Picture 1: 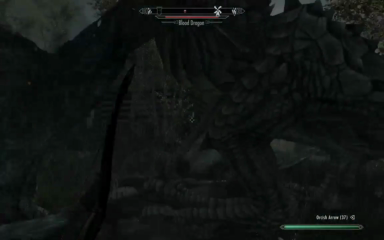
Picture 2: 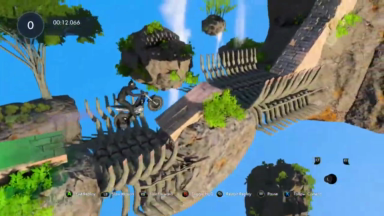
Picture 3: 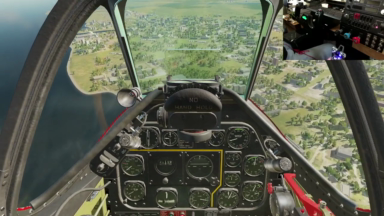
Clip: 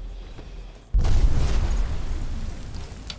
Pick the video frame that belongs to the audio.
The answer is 1